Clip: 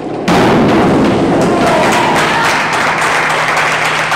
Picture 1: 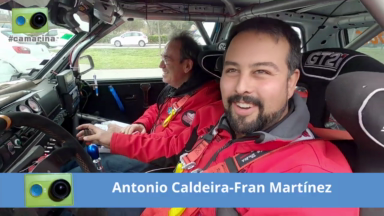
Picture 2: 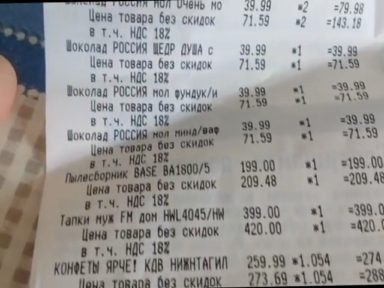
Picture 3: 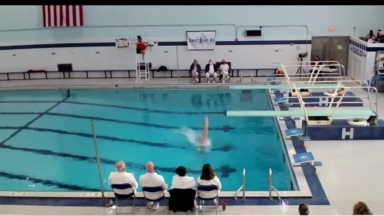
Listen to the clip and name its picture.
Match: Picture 3